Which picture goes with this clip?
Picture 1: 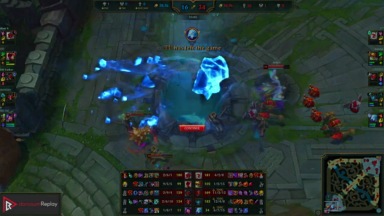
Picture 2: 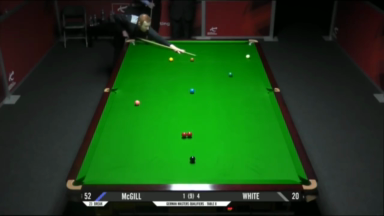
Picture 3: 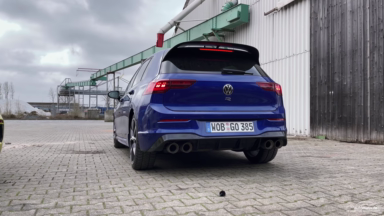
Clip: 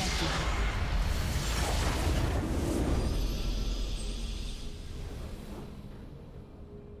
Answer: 1